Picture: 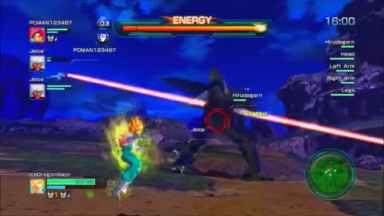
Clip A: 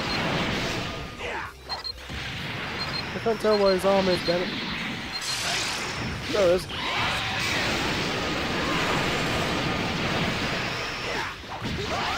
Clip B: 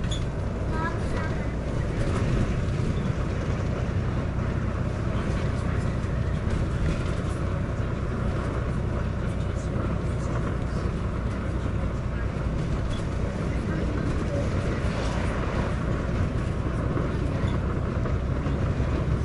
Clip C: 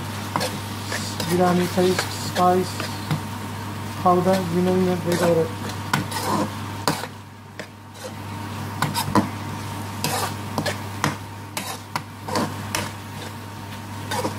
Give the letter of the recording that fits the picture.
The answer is A